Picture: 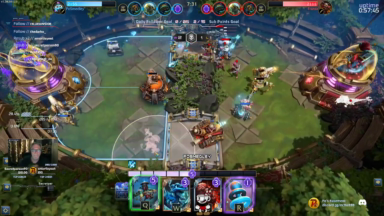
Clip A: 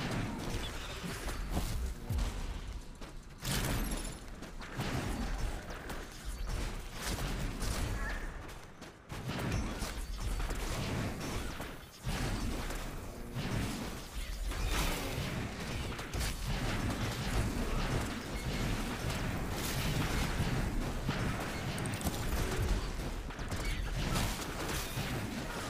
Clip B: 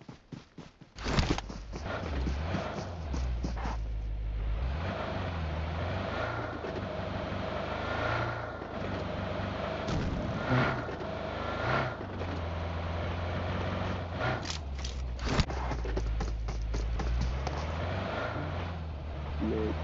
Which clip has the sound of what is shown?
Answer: A